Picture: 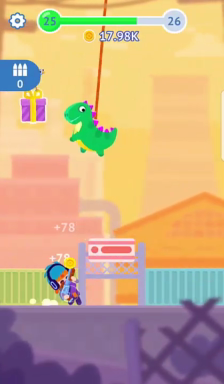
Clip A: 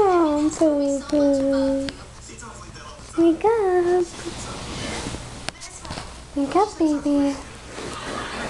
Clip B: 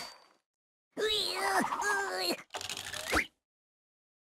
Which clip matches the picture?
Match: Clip B